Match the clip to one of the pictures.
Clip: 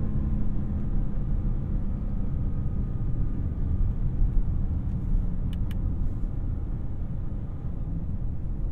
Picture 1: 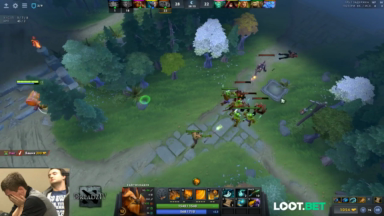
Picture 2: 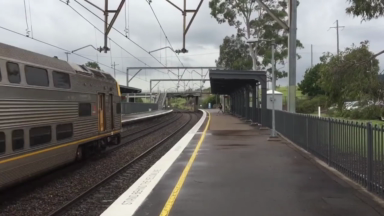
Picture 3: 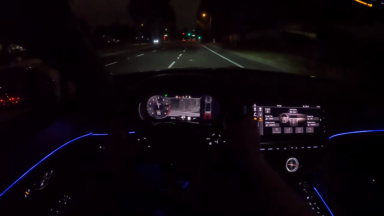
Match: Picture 3